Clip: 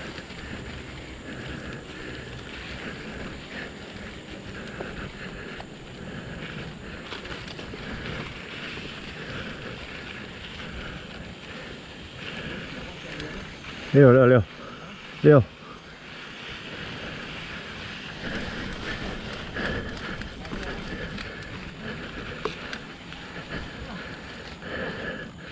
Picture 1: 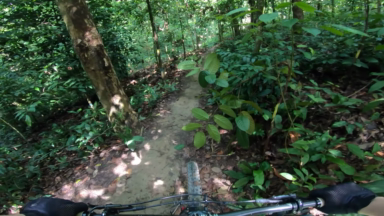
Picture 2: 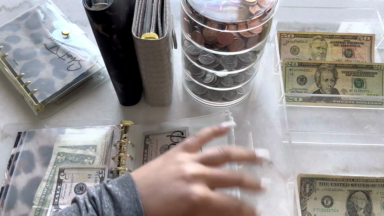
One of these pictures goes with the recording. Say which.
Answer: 1